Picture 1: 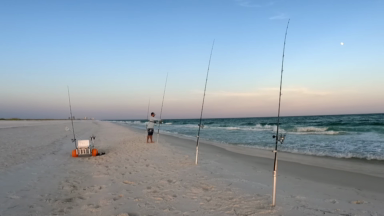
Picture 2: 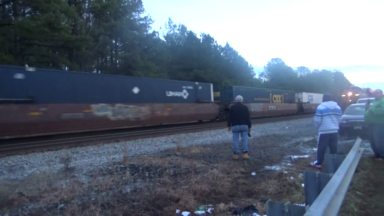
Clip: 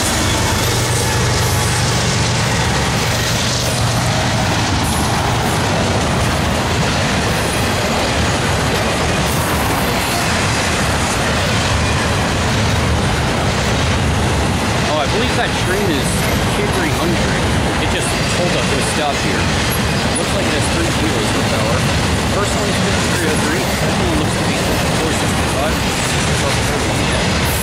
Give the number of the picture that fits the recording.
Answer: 2